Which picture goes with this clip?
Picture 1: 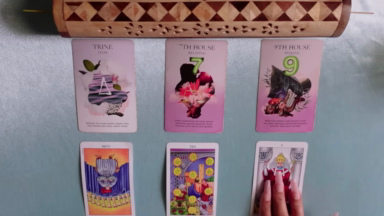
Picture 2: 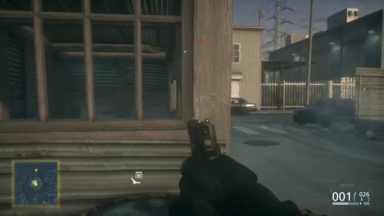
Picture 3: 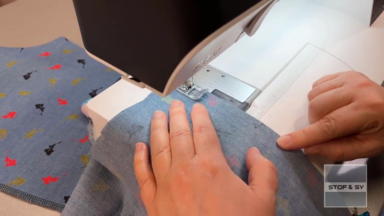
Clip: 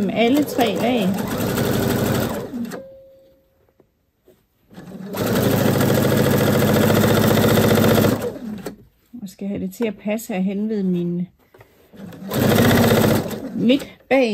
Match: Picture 3